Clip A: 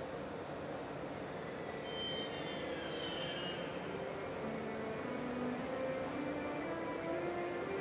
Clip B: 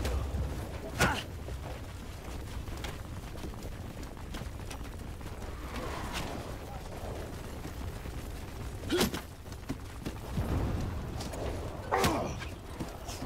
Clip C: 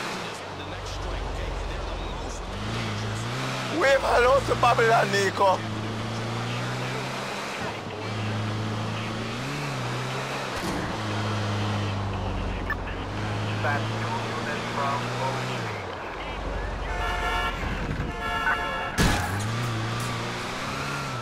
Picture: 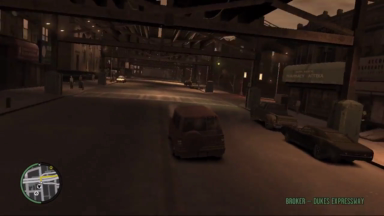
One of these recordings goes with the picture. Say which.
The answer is C